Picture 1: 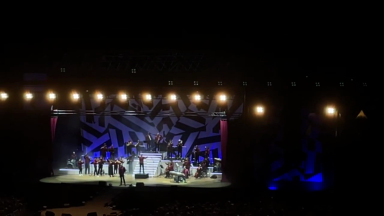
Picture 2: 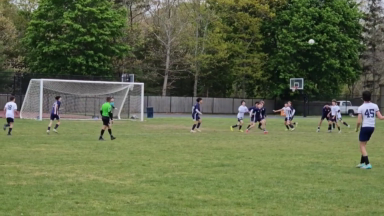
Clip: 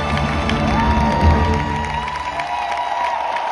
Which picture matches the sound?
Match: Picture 1